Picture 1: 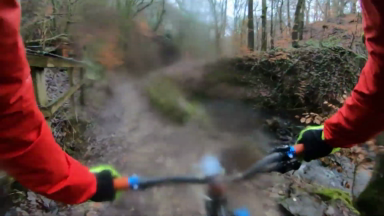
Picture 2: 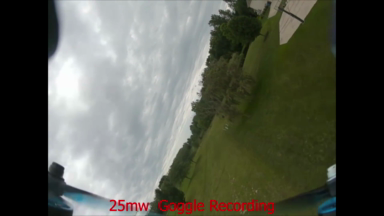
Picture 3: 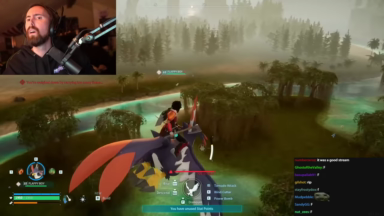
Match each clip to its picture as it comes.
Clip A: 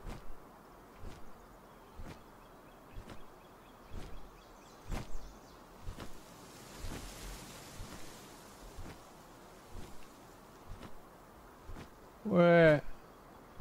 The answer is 3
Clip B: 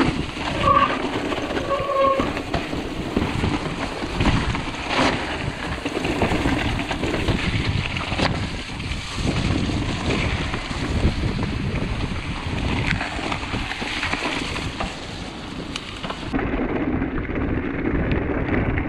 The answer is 1